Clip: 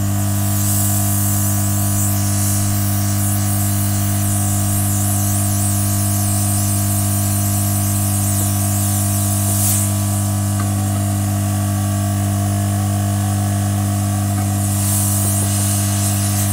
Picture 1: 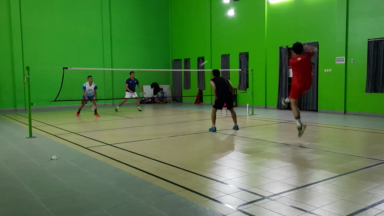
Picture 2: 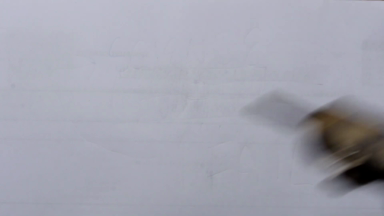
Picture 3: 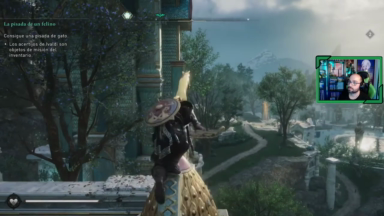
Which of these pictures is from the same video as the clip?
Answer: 2